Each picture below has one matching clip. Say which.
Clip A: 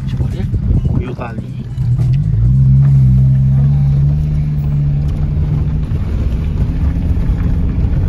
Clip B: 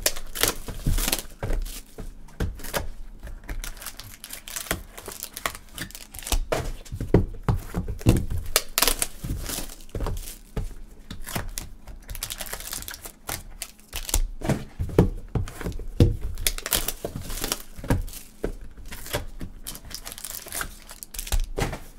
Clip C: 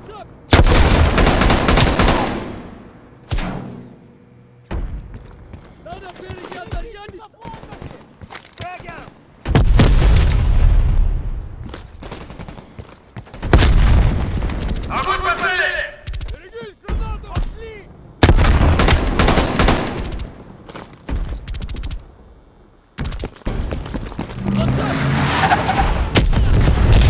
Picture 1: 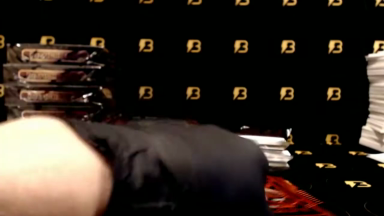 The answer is B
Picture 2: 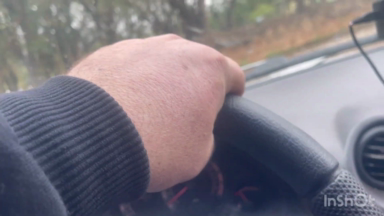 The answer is A